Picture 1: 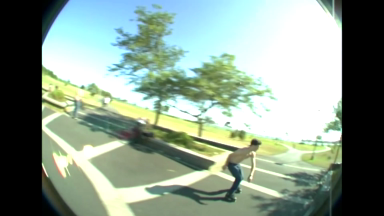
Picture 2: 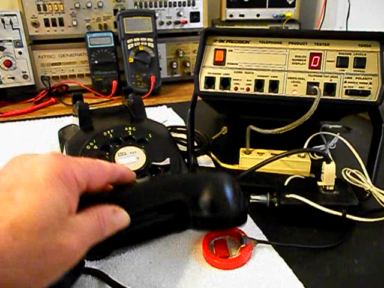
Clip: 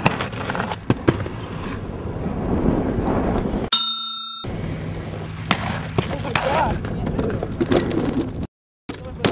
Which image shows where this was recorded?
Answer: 1